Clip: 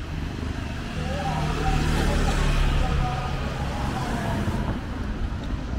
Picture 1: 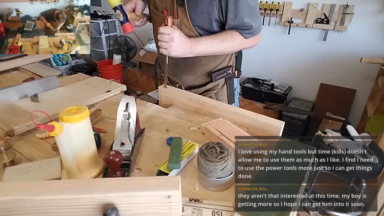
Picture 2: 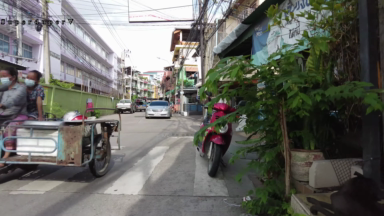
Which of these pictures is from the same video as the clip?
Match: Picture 2